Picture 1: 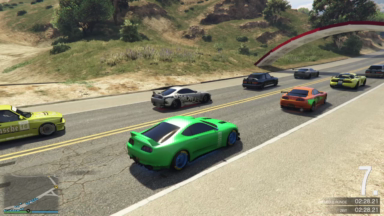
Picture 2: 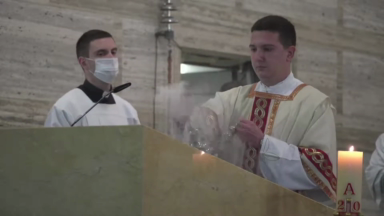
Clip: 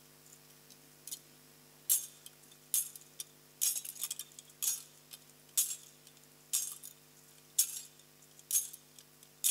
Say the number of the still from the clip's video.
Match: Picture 2